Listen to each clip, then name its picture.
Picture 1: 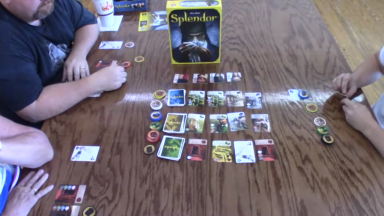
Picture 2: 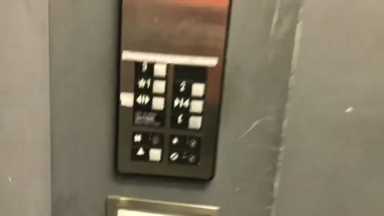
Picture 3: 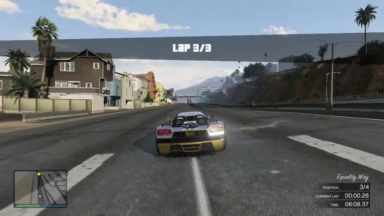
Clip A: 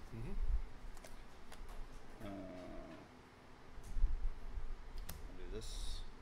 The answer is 1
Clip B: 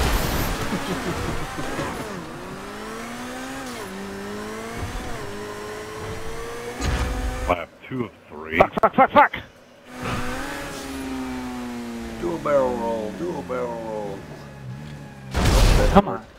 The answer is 3